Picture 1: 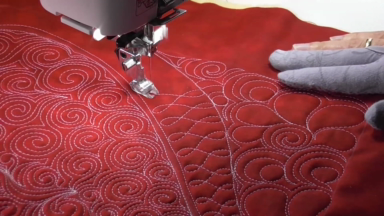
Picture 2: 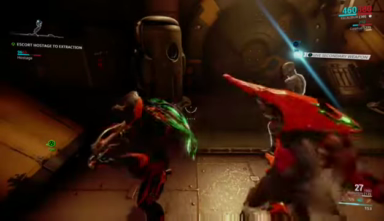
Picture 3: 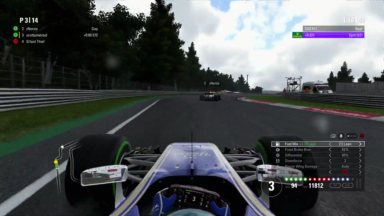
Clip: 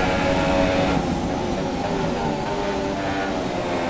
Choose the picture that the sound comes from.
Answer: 3